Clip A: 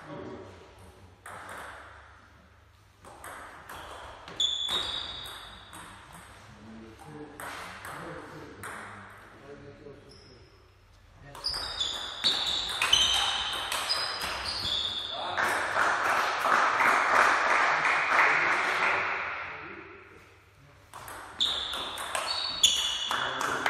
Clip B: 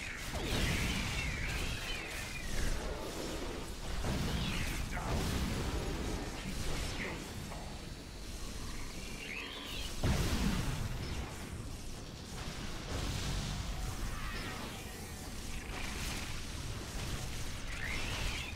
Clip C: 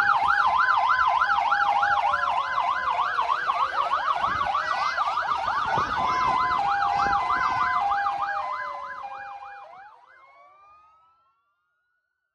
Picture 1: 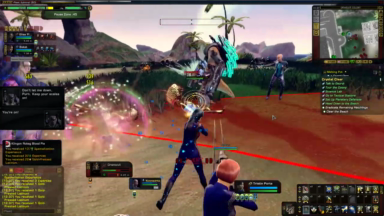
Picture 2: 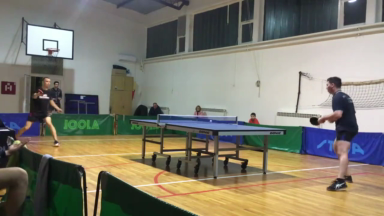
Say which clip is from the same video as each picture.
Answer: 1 B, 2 A